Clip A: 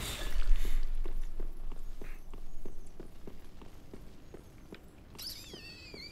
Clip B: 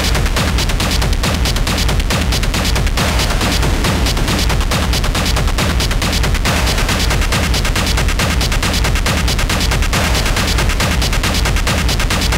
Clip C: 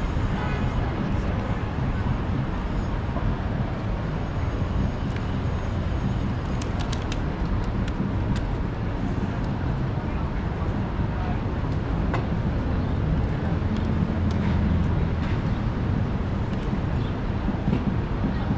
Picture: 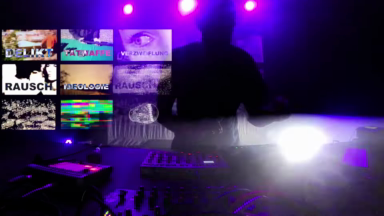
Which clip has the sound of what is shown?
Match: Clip B